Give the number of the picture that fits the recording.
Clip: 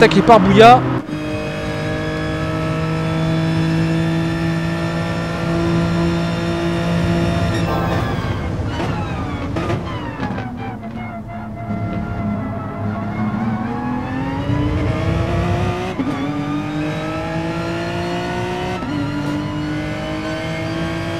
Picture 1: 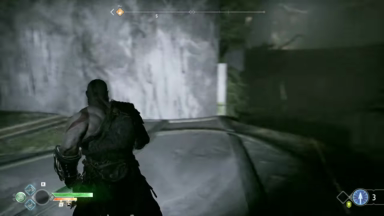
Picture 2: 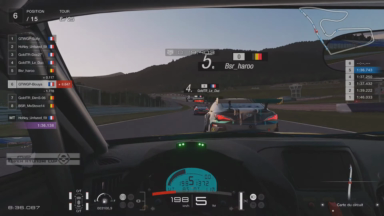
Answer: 2